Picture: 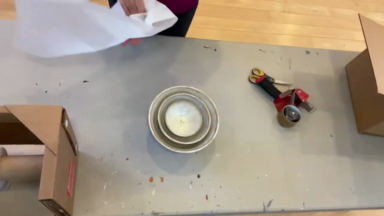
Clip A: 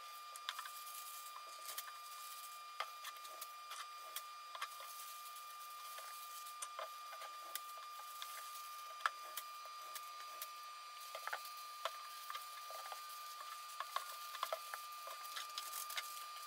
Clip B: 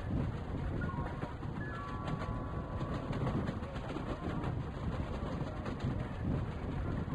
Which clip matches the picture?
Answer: A